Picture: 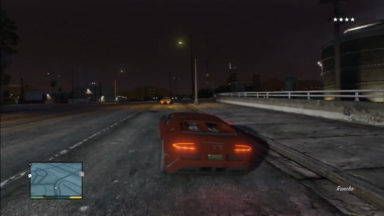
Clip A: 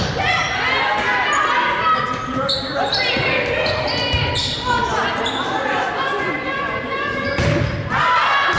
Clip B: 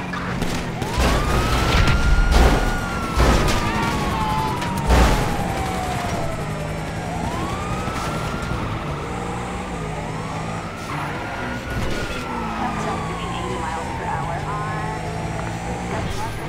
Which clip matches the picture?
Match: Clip B